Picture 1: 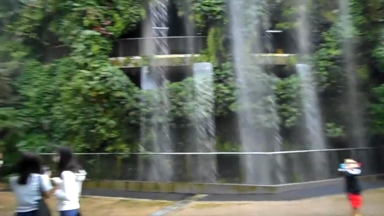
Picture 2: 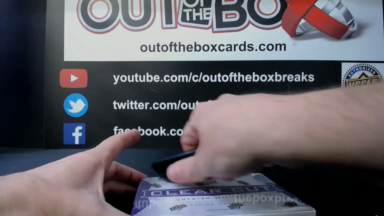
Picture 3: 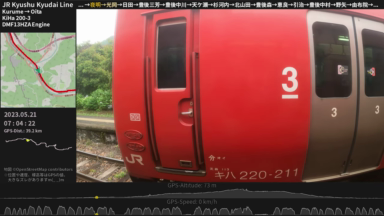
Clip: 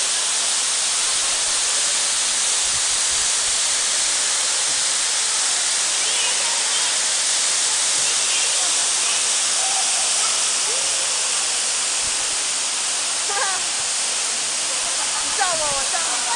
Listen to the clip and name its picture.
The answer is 1